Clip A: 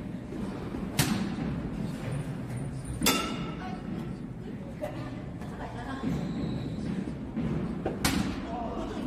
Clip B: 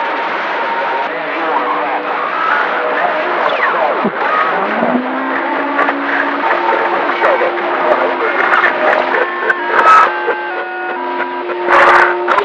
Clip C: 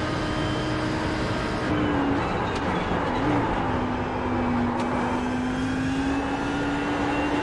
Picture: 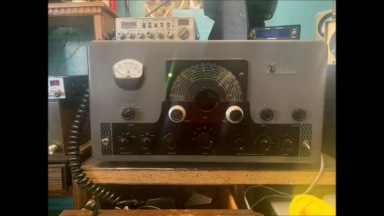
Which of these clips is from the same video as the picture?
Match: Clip B